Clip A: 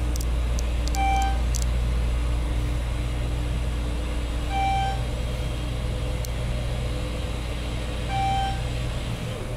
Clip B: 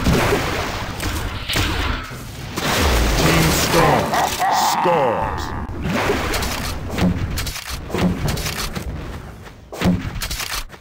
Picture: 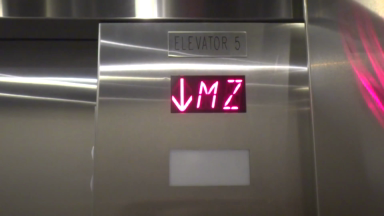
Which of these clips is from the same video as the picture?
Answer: A